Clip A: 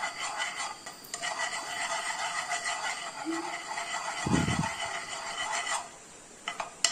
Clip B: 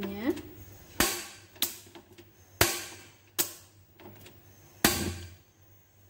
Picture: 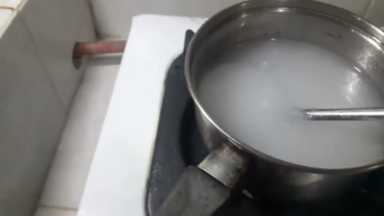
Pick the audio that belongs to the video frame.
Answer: B